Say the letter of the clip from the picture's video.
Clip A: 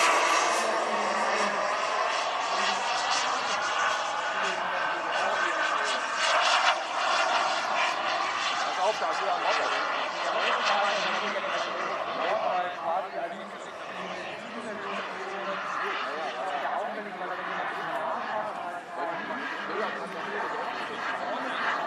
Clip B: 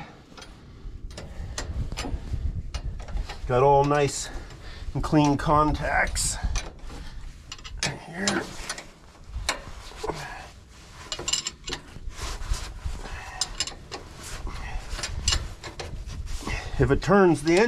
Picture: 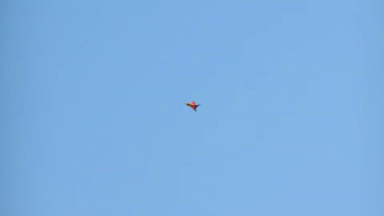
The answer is A